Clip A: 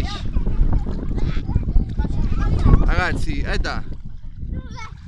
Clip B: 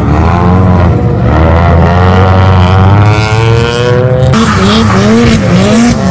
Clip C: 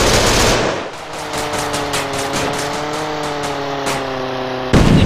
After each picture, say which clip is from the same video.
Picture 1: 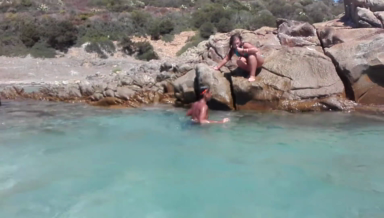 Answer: A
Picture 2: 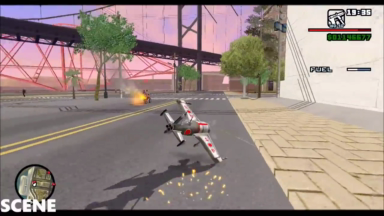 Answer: C